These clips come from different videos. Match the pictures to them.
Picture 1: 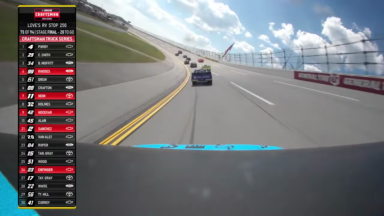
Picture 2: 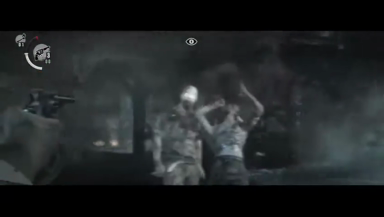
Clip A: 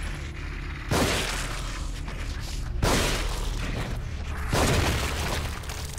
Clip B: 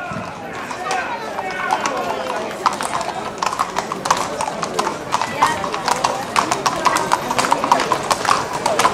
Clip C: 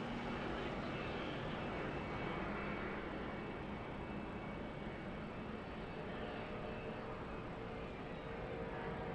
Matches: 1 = C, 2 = A